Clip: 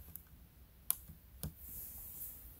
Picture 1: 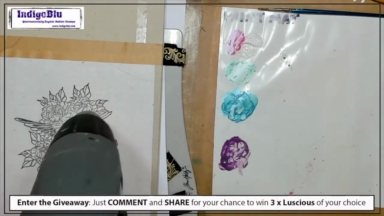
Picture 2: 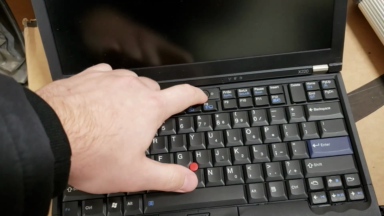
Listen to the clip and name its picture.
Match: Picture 2